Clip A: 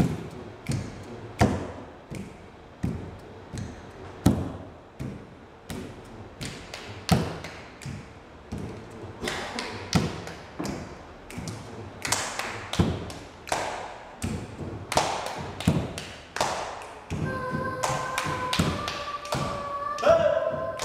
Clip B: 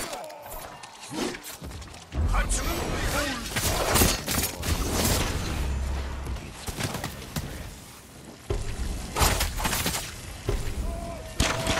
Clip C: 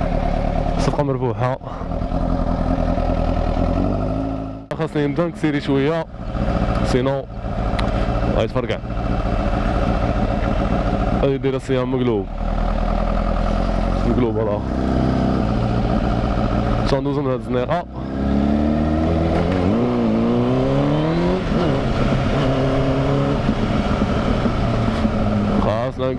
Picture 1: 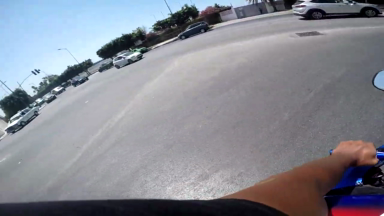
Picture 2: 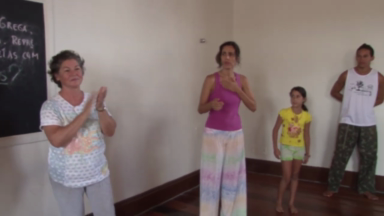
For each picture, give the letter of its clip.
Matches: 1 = C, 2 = A